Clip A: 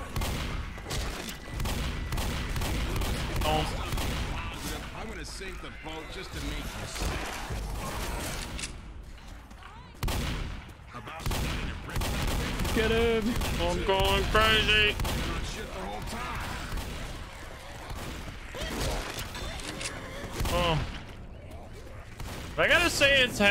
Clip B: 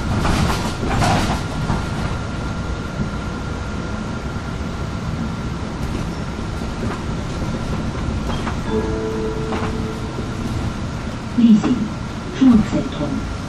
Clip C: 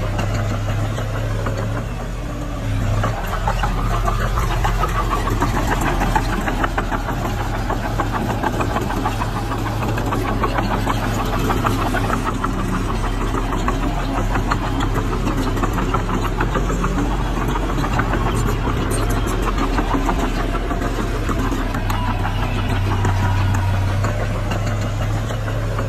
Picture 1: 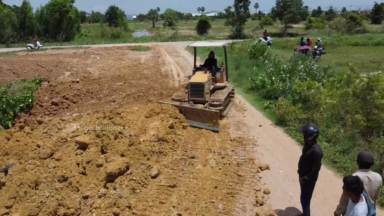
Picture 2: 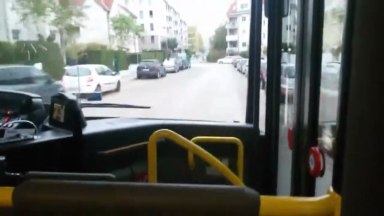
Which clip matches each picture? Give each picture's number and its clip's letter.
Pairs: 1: C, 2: B